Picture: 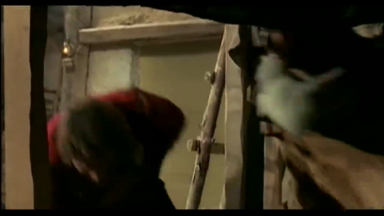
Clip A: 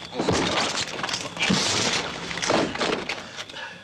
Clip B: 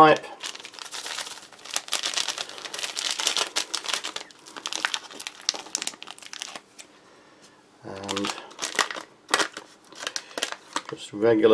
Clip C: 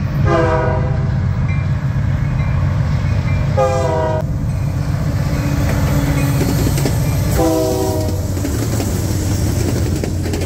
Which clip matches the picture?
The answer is A